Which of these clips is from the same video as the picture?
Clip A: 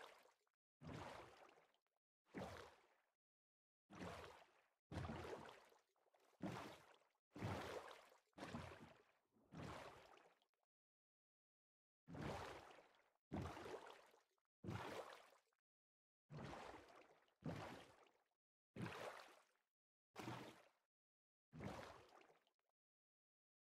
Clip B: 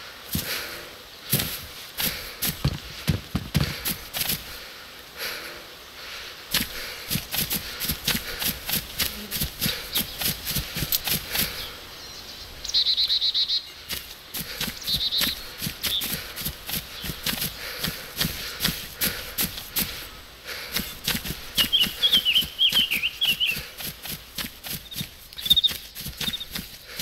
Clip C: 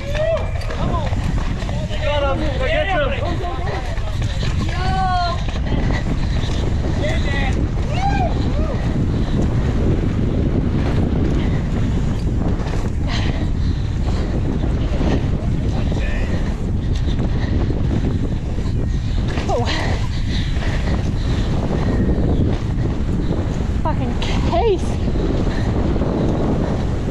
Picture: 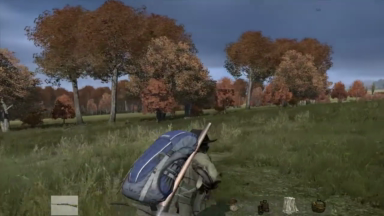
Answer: B